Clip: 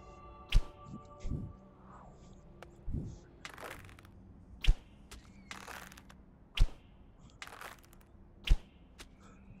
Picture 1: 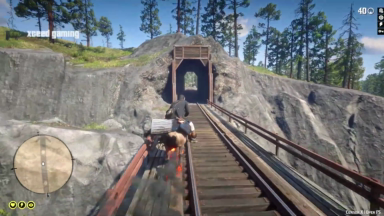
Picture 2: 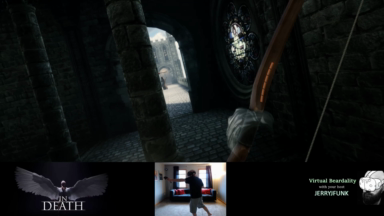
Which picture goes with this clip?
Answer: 2